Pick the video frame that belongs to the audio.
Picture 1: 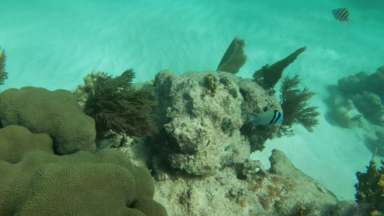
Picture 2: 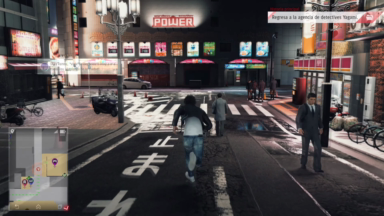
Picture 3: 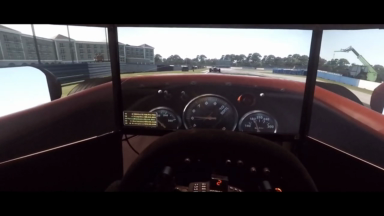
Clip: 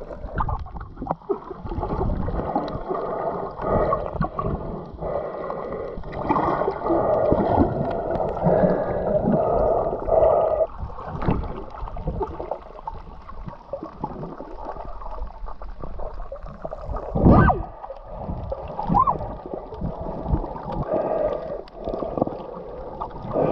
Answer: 1